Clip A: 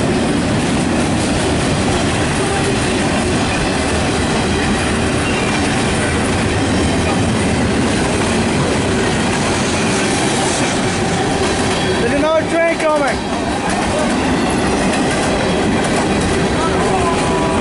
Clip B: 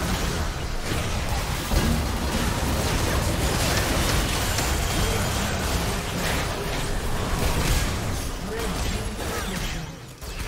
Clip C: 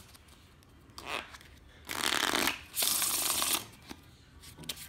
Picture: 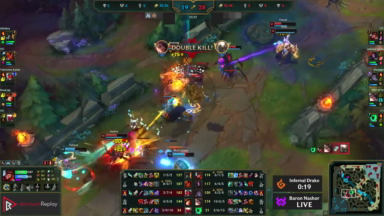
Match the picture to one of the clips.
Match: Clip B